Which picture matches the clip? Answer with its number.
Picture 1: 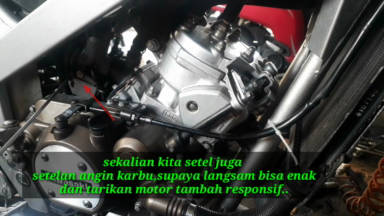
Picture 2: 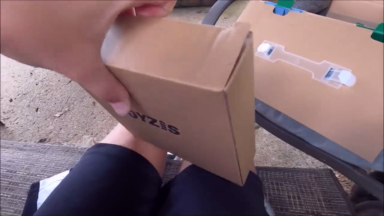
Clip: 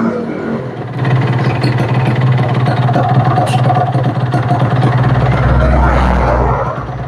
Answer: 1